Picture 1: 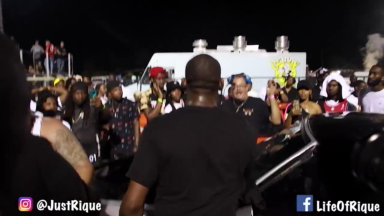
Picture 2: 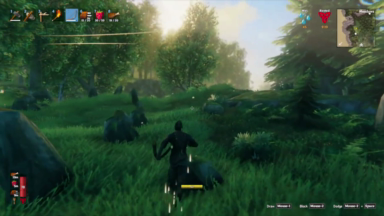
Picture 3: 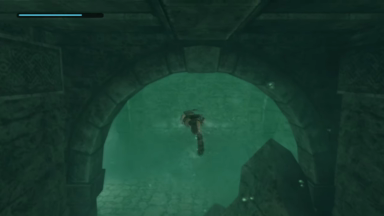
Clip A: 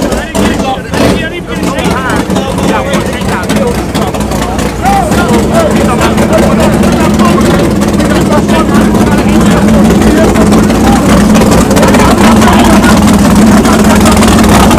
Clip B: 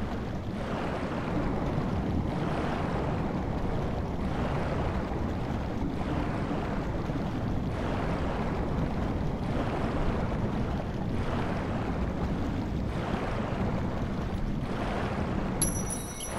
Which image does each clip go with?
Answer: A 1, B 3